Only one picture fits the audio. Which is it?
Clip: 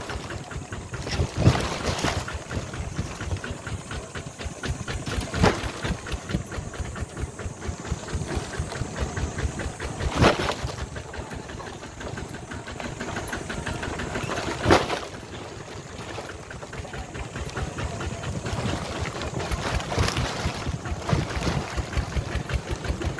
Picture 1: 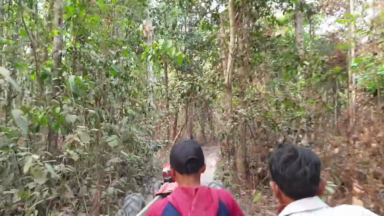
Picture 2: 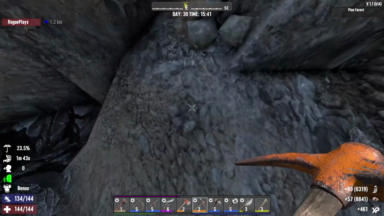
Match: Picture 1